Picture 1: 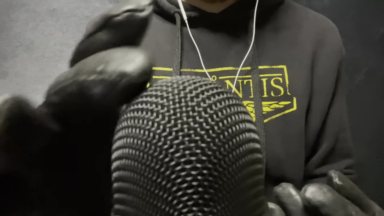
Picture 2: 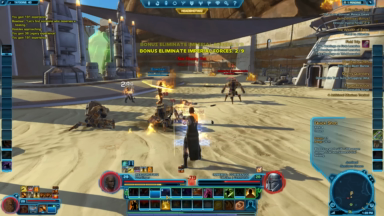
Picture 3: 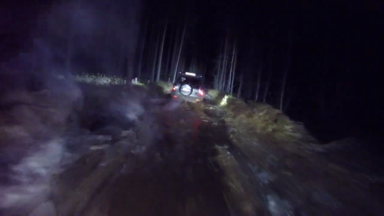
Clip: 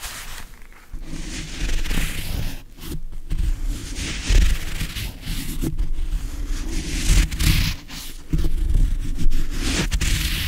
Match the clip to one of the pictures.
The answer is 1